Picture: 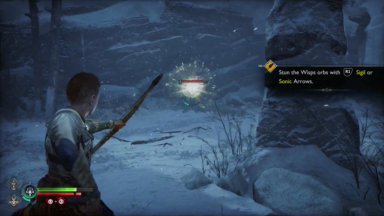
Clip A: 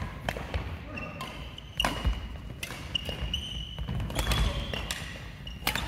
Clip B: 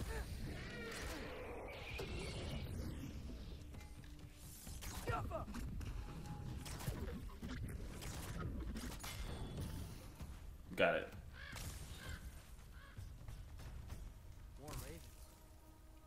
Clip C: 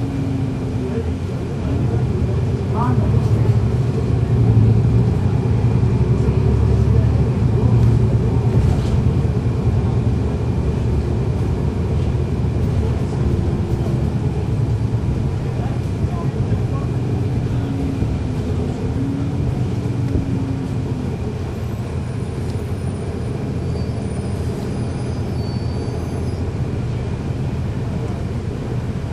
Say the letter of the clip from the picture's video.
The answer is B